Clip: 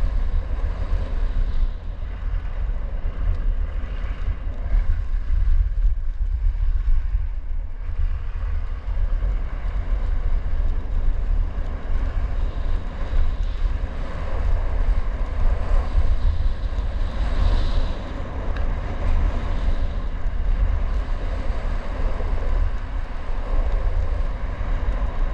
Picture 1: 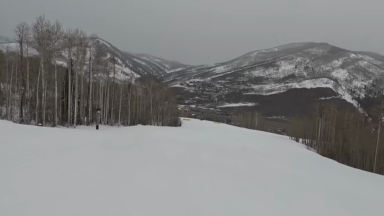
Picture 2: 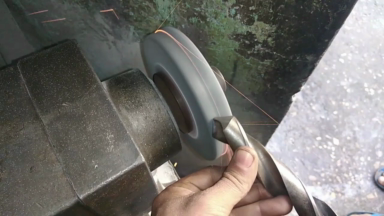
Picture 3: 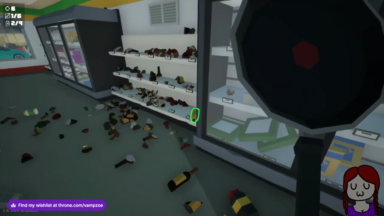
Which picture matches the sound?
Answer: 1